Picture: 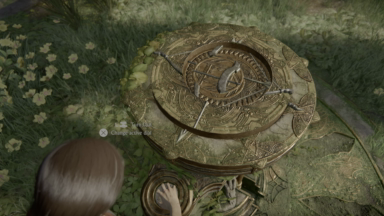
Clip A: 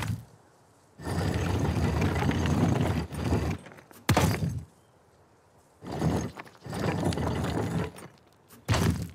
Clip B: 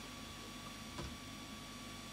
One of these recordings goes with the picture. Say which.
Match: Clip A